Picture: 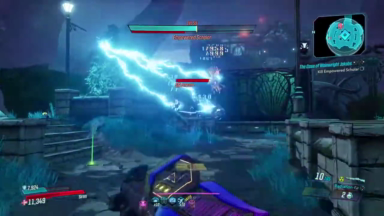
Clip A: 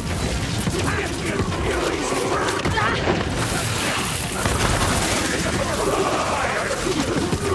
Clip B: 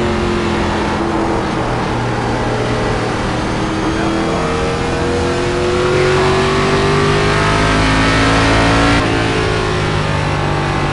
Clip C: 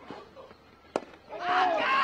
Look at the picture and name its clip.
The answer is A